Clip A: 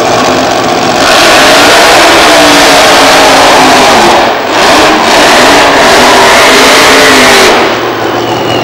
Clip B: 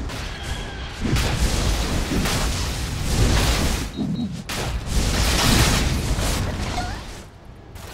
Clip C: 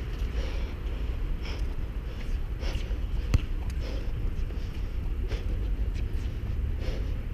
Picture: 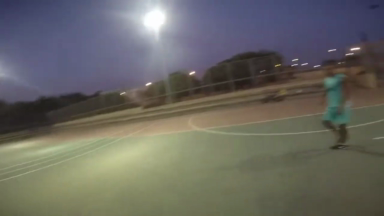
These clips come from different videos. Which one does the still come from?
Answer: C